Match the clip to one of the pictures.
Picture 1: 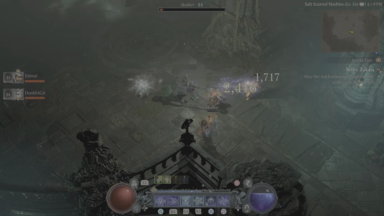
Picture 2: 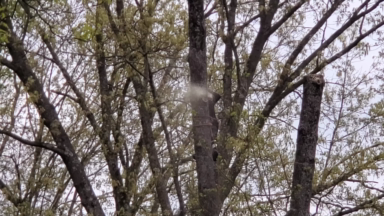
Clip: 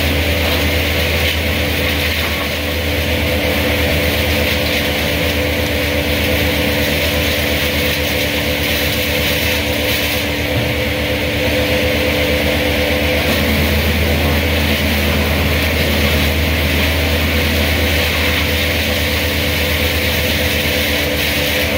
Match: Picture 2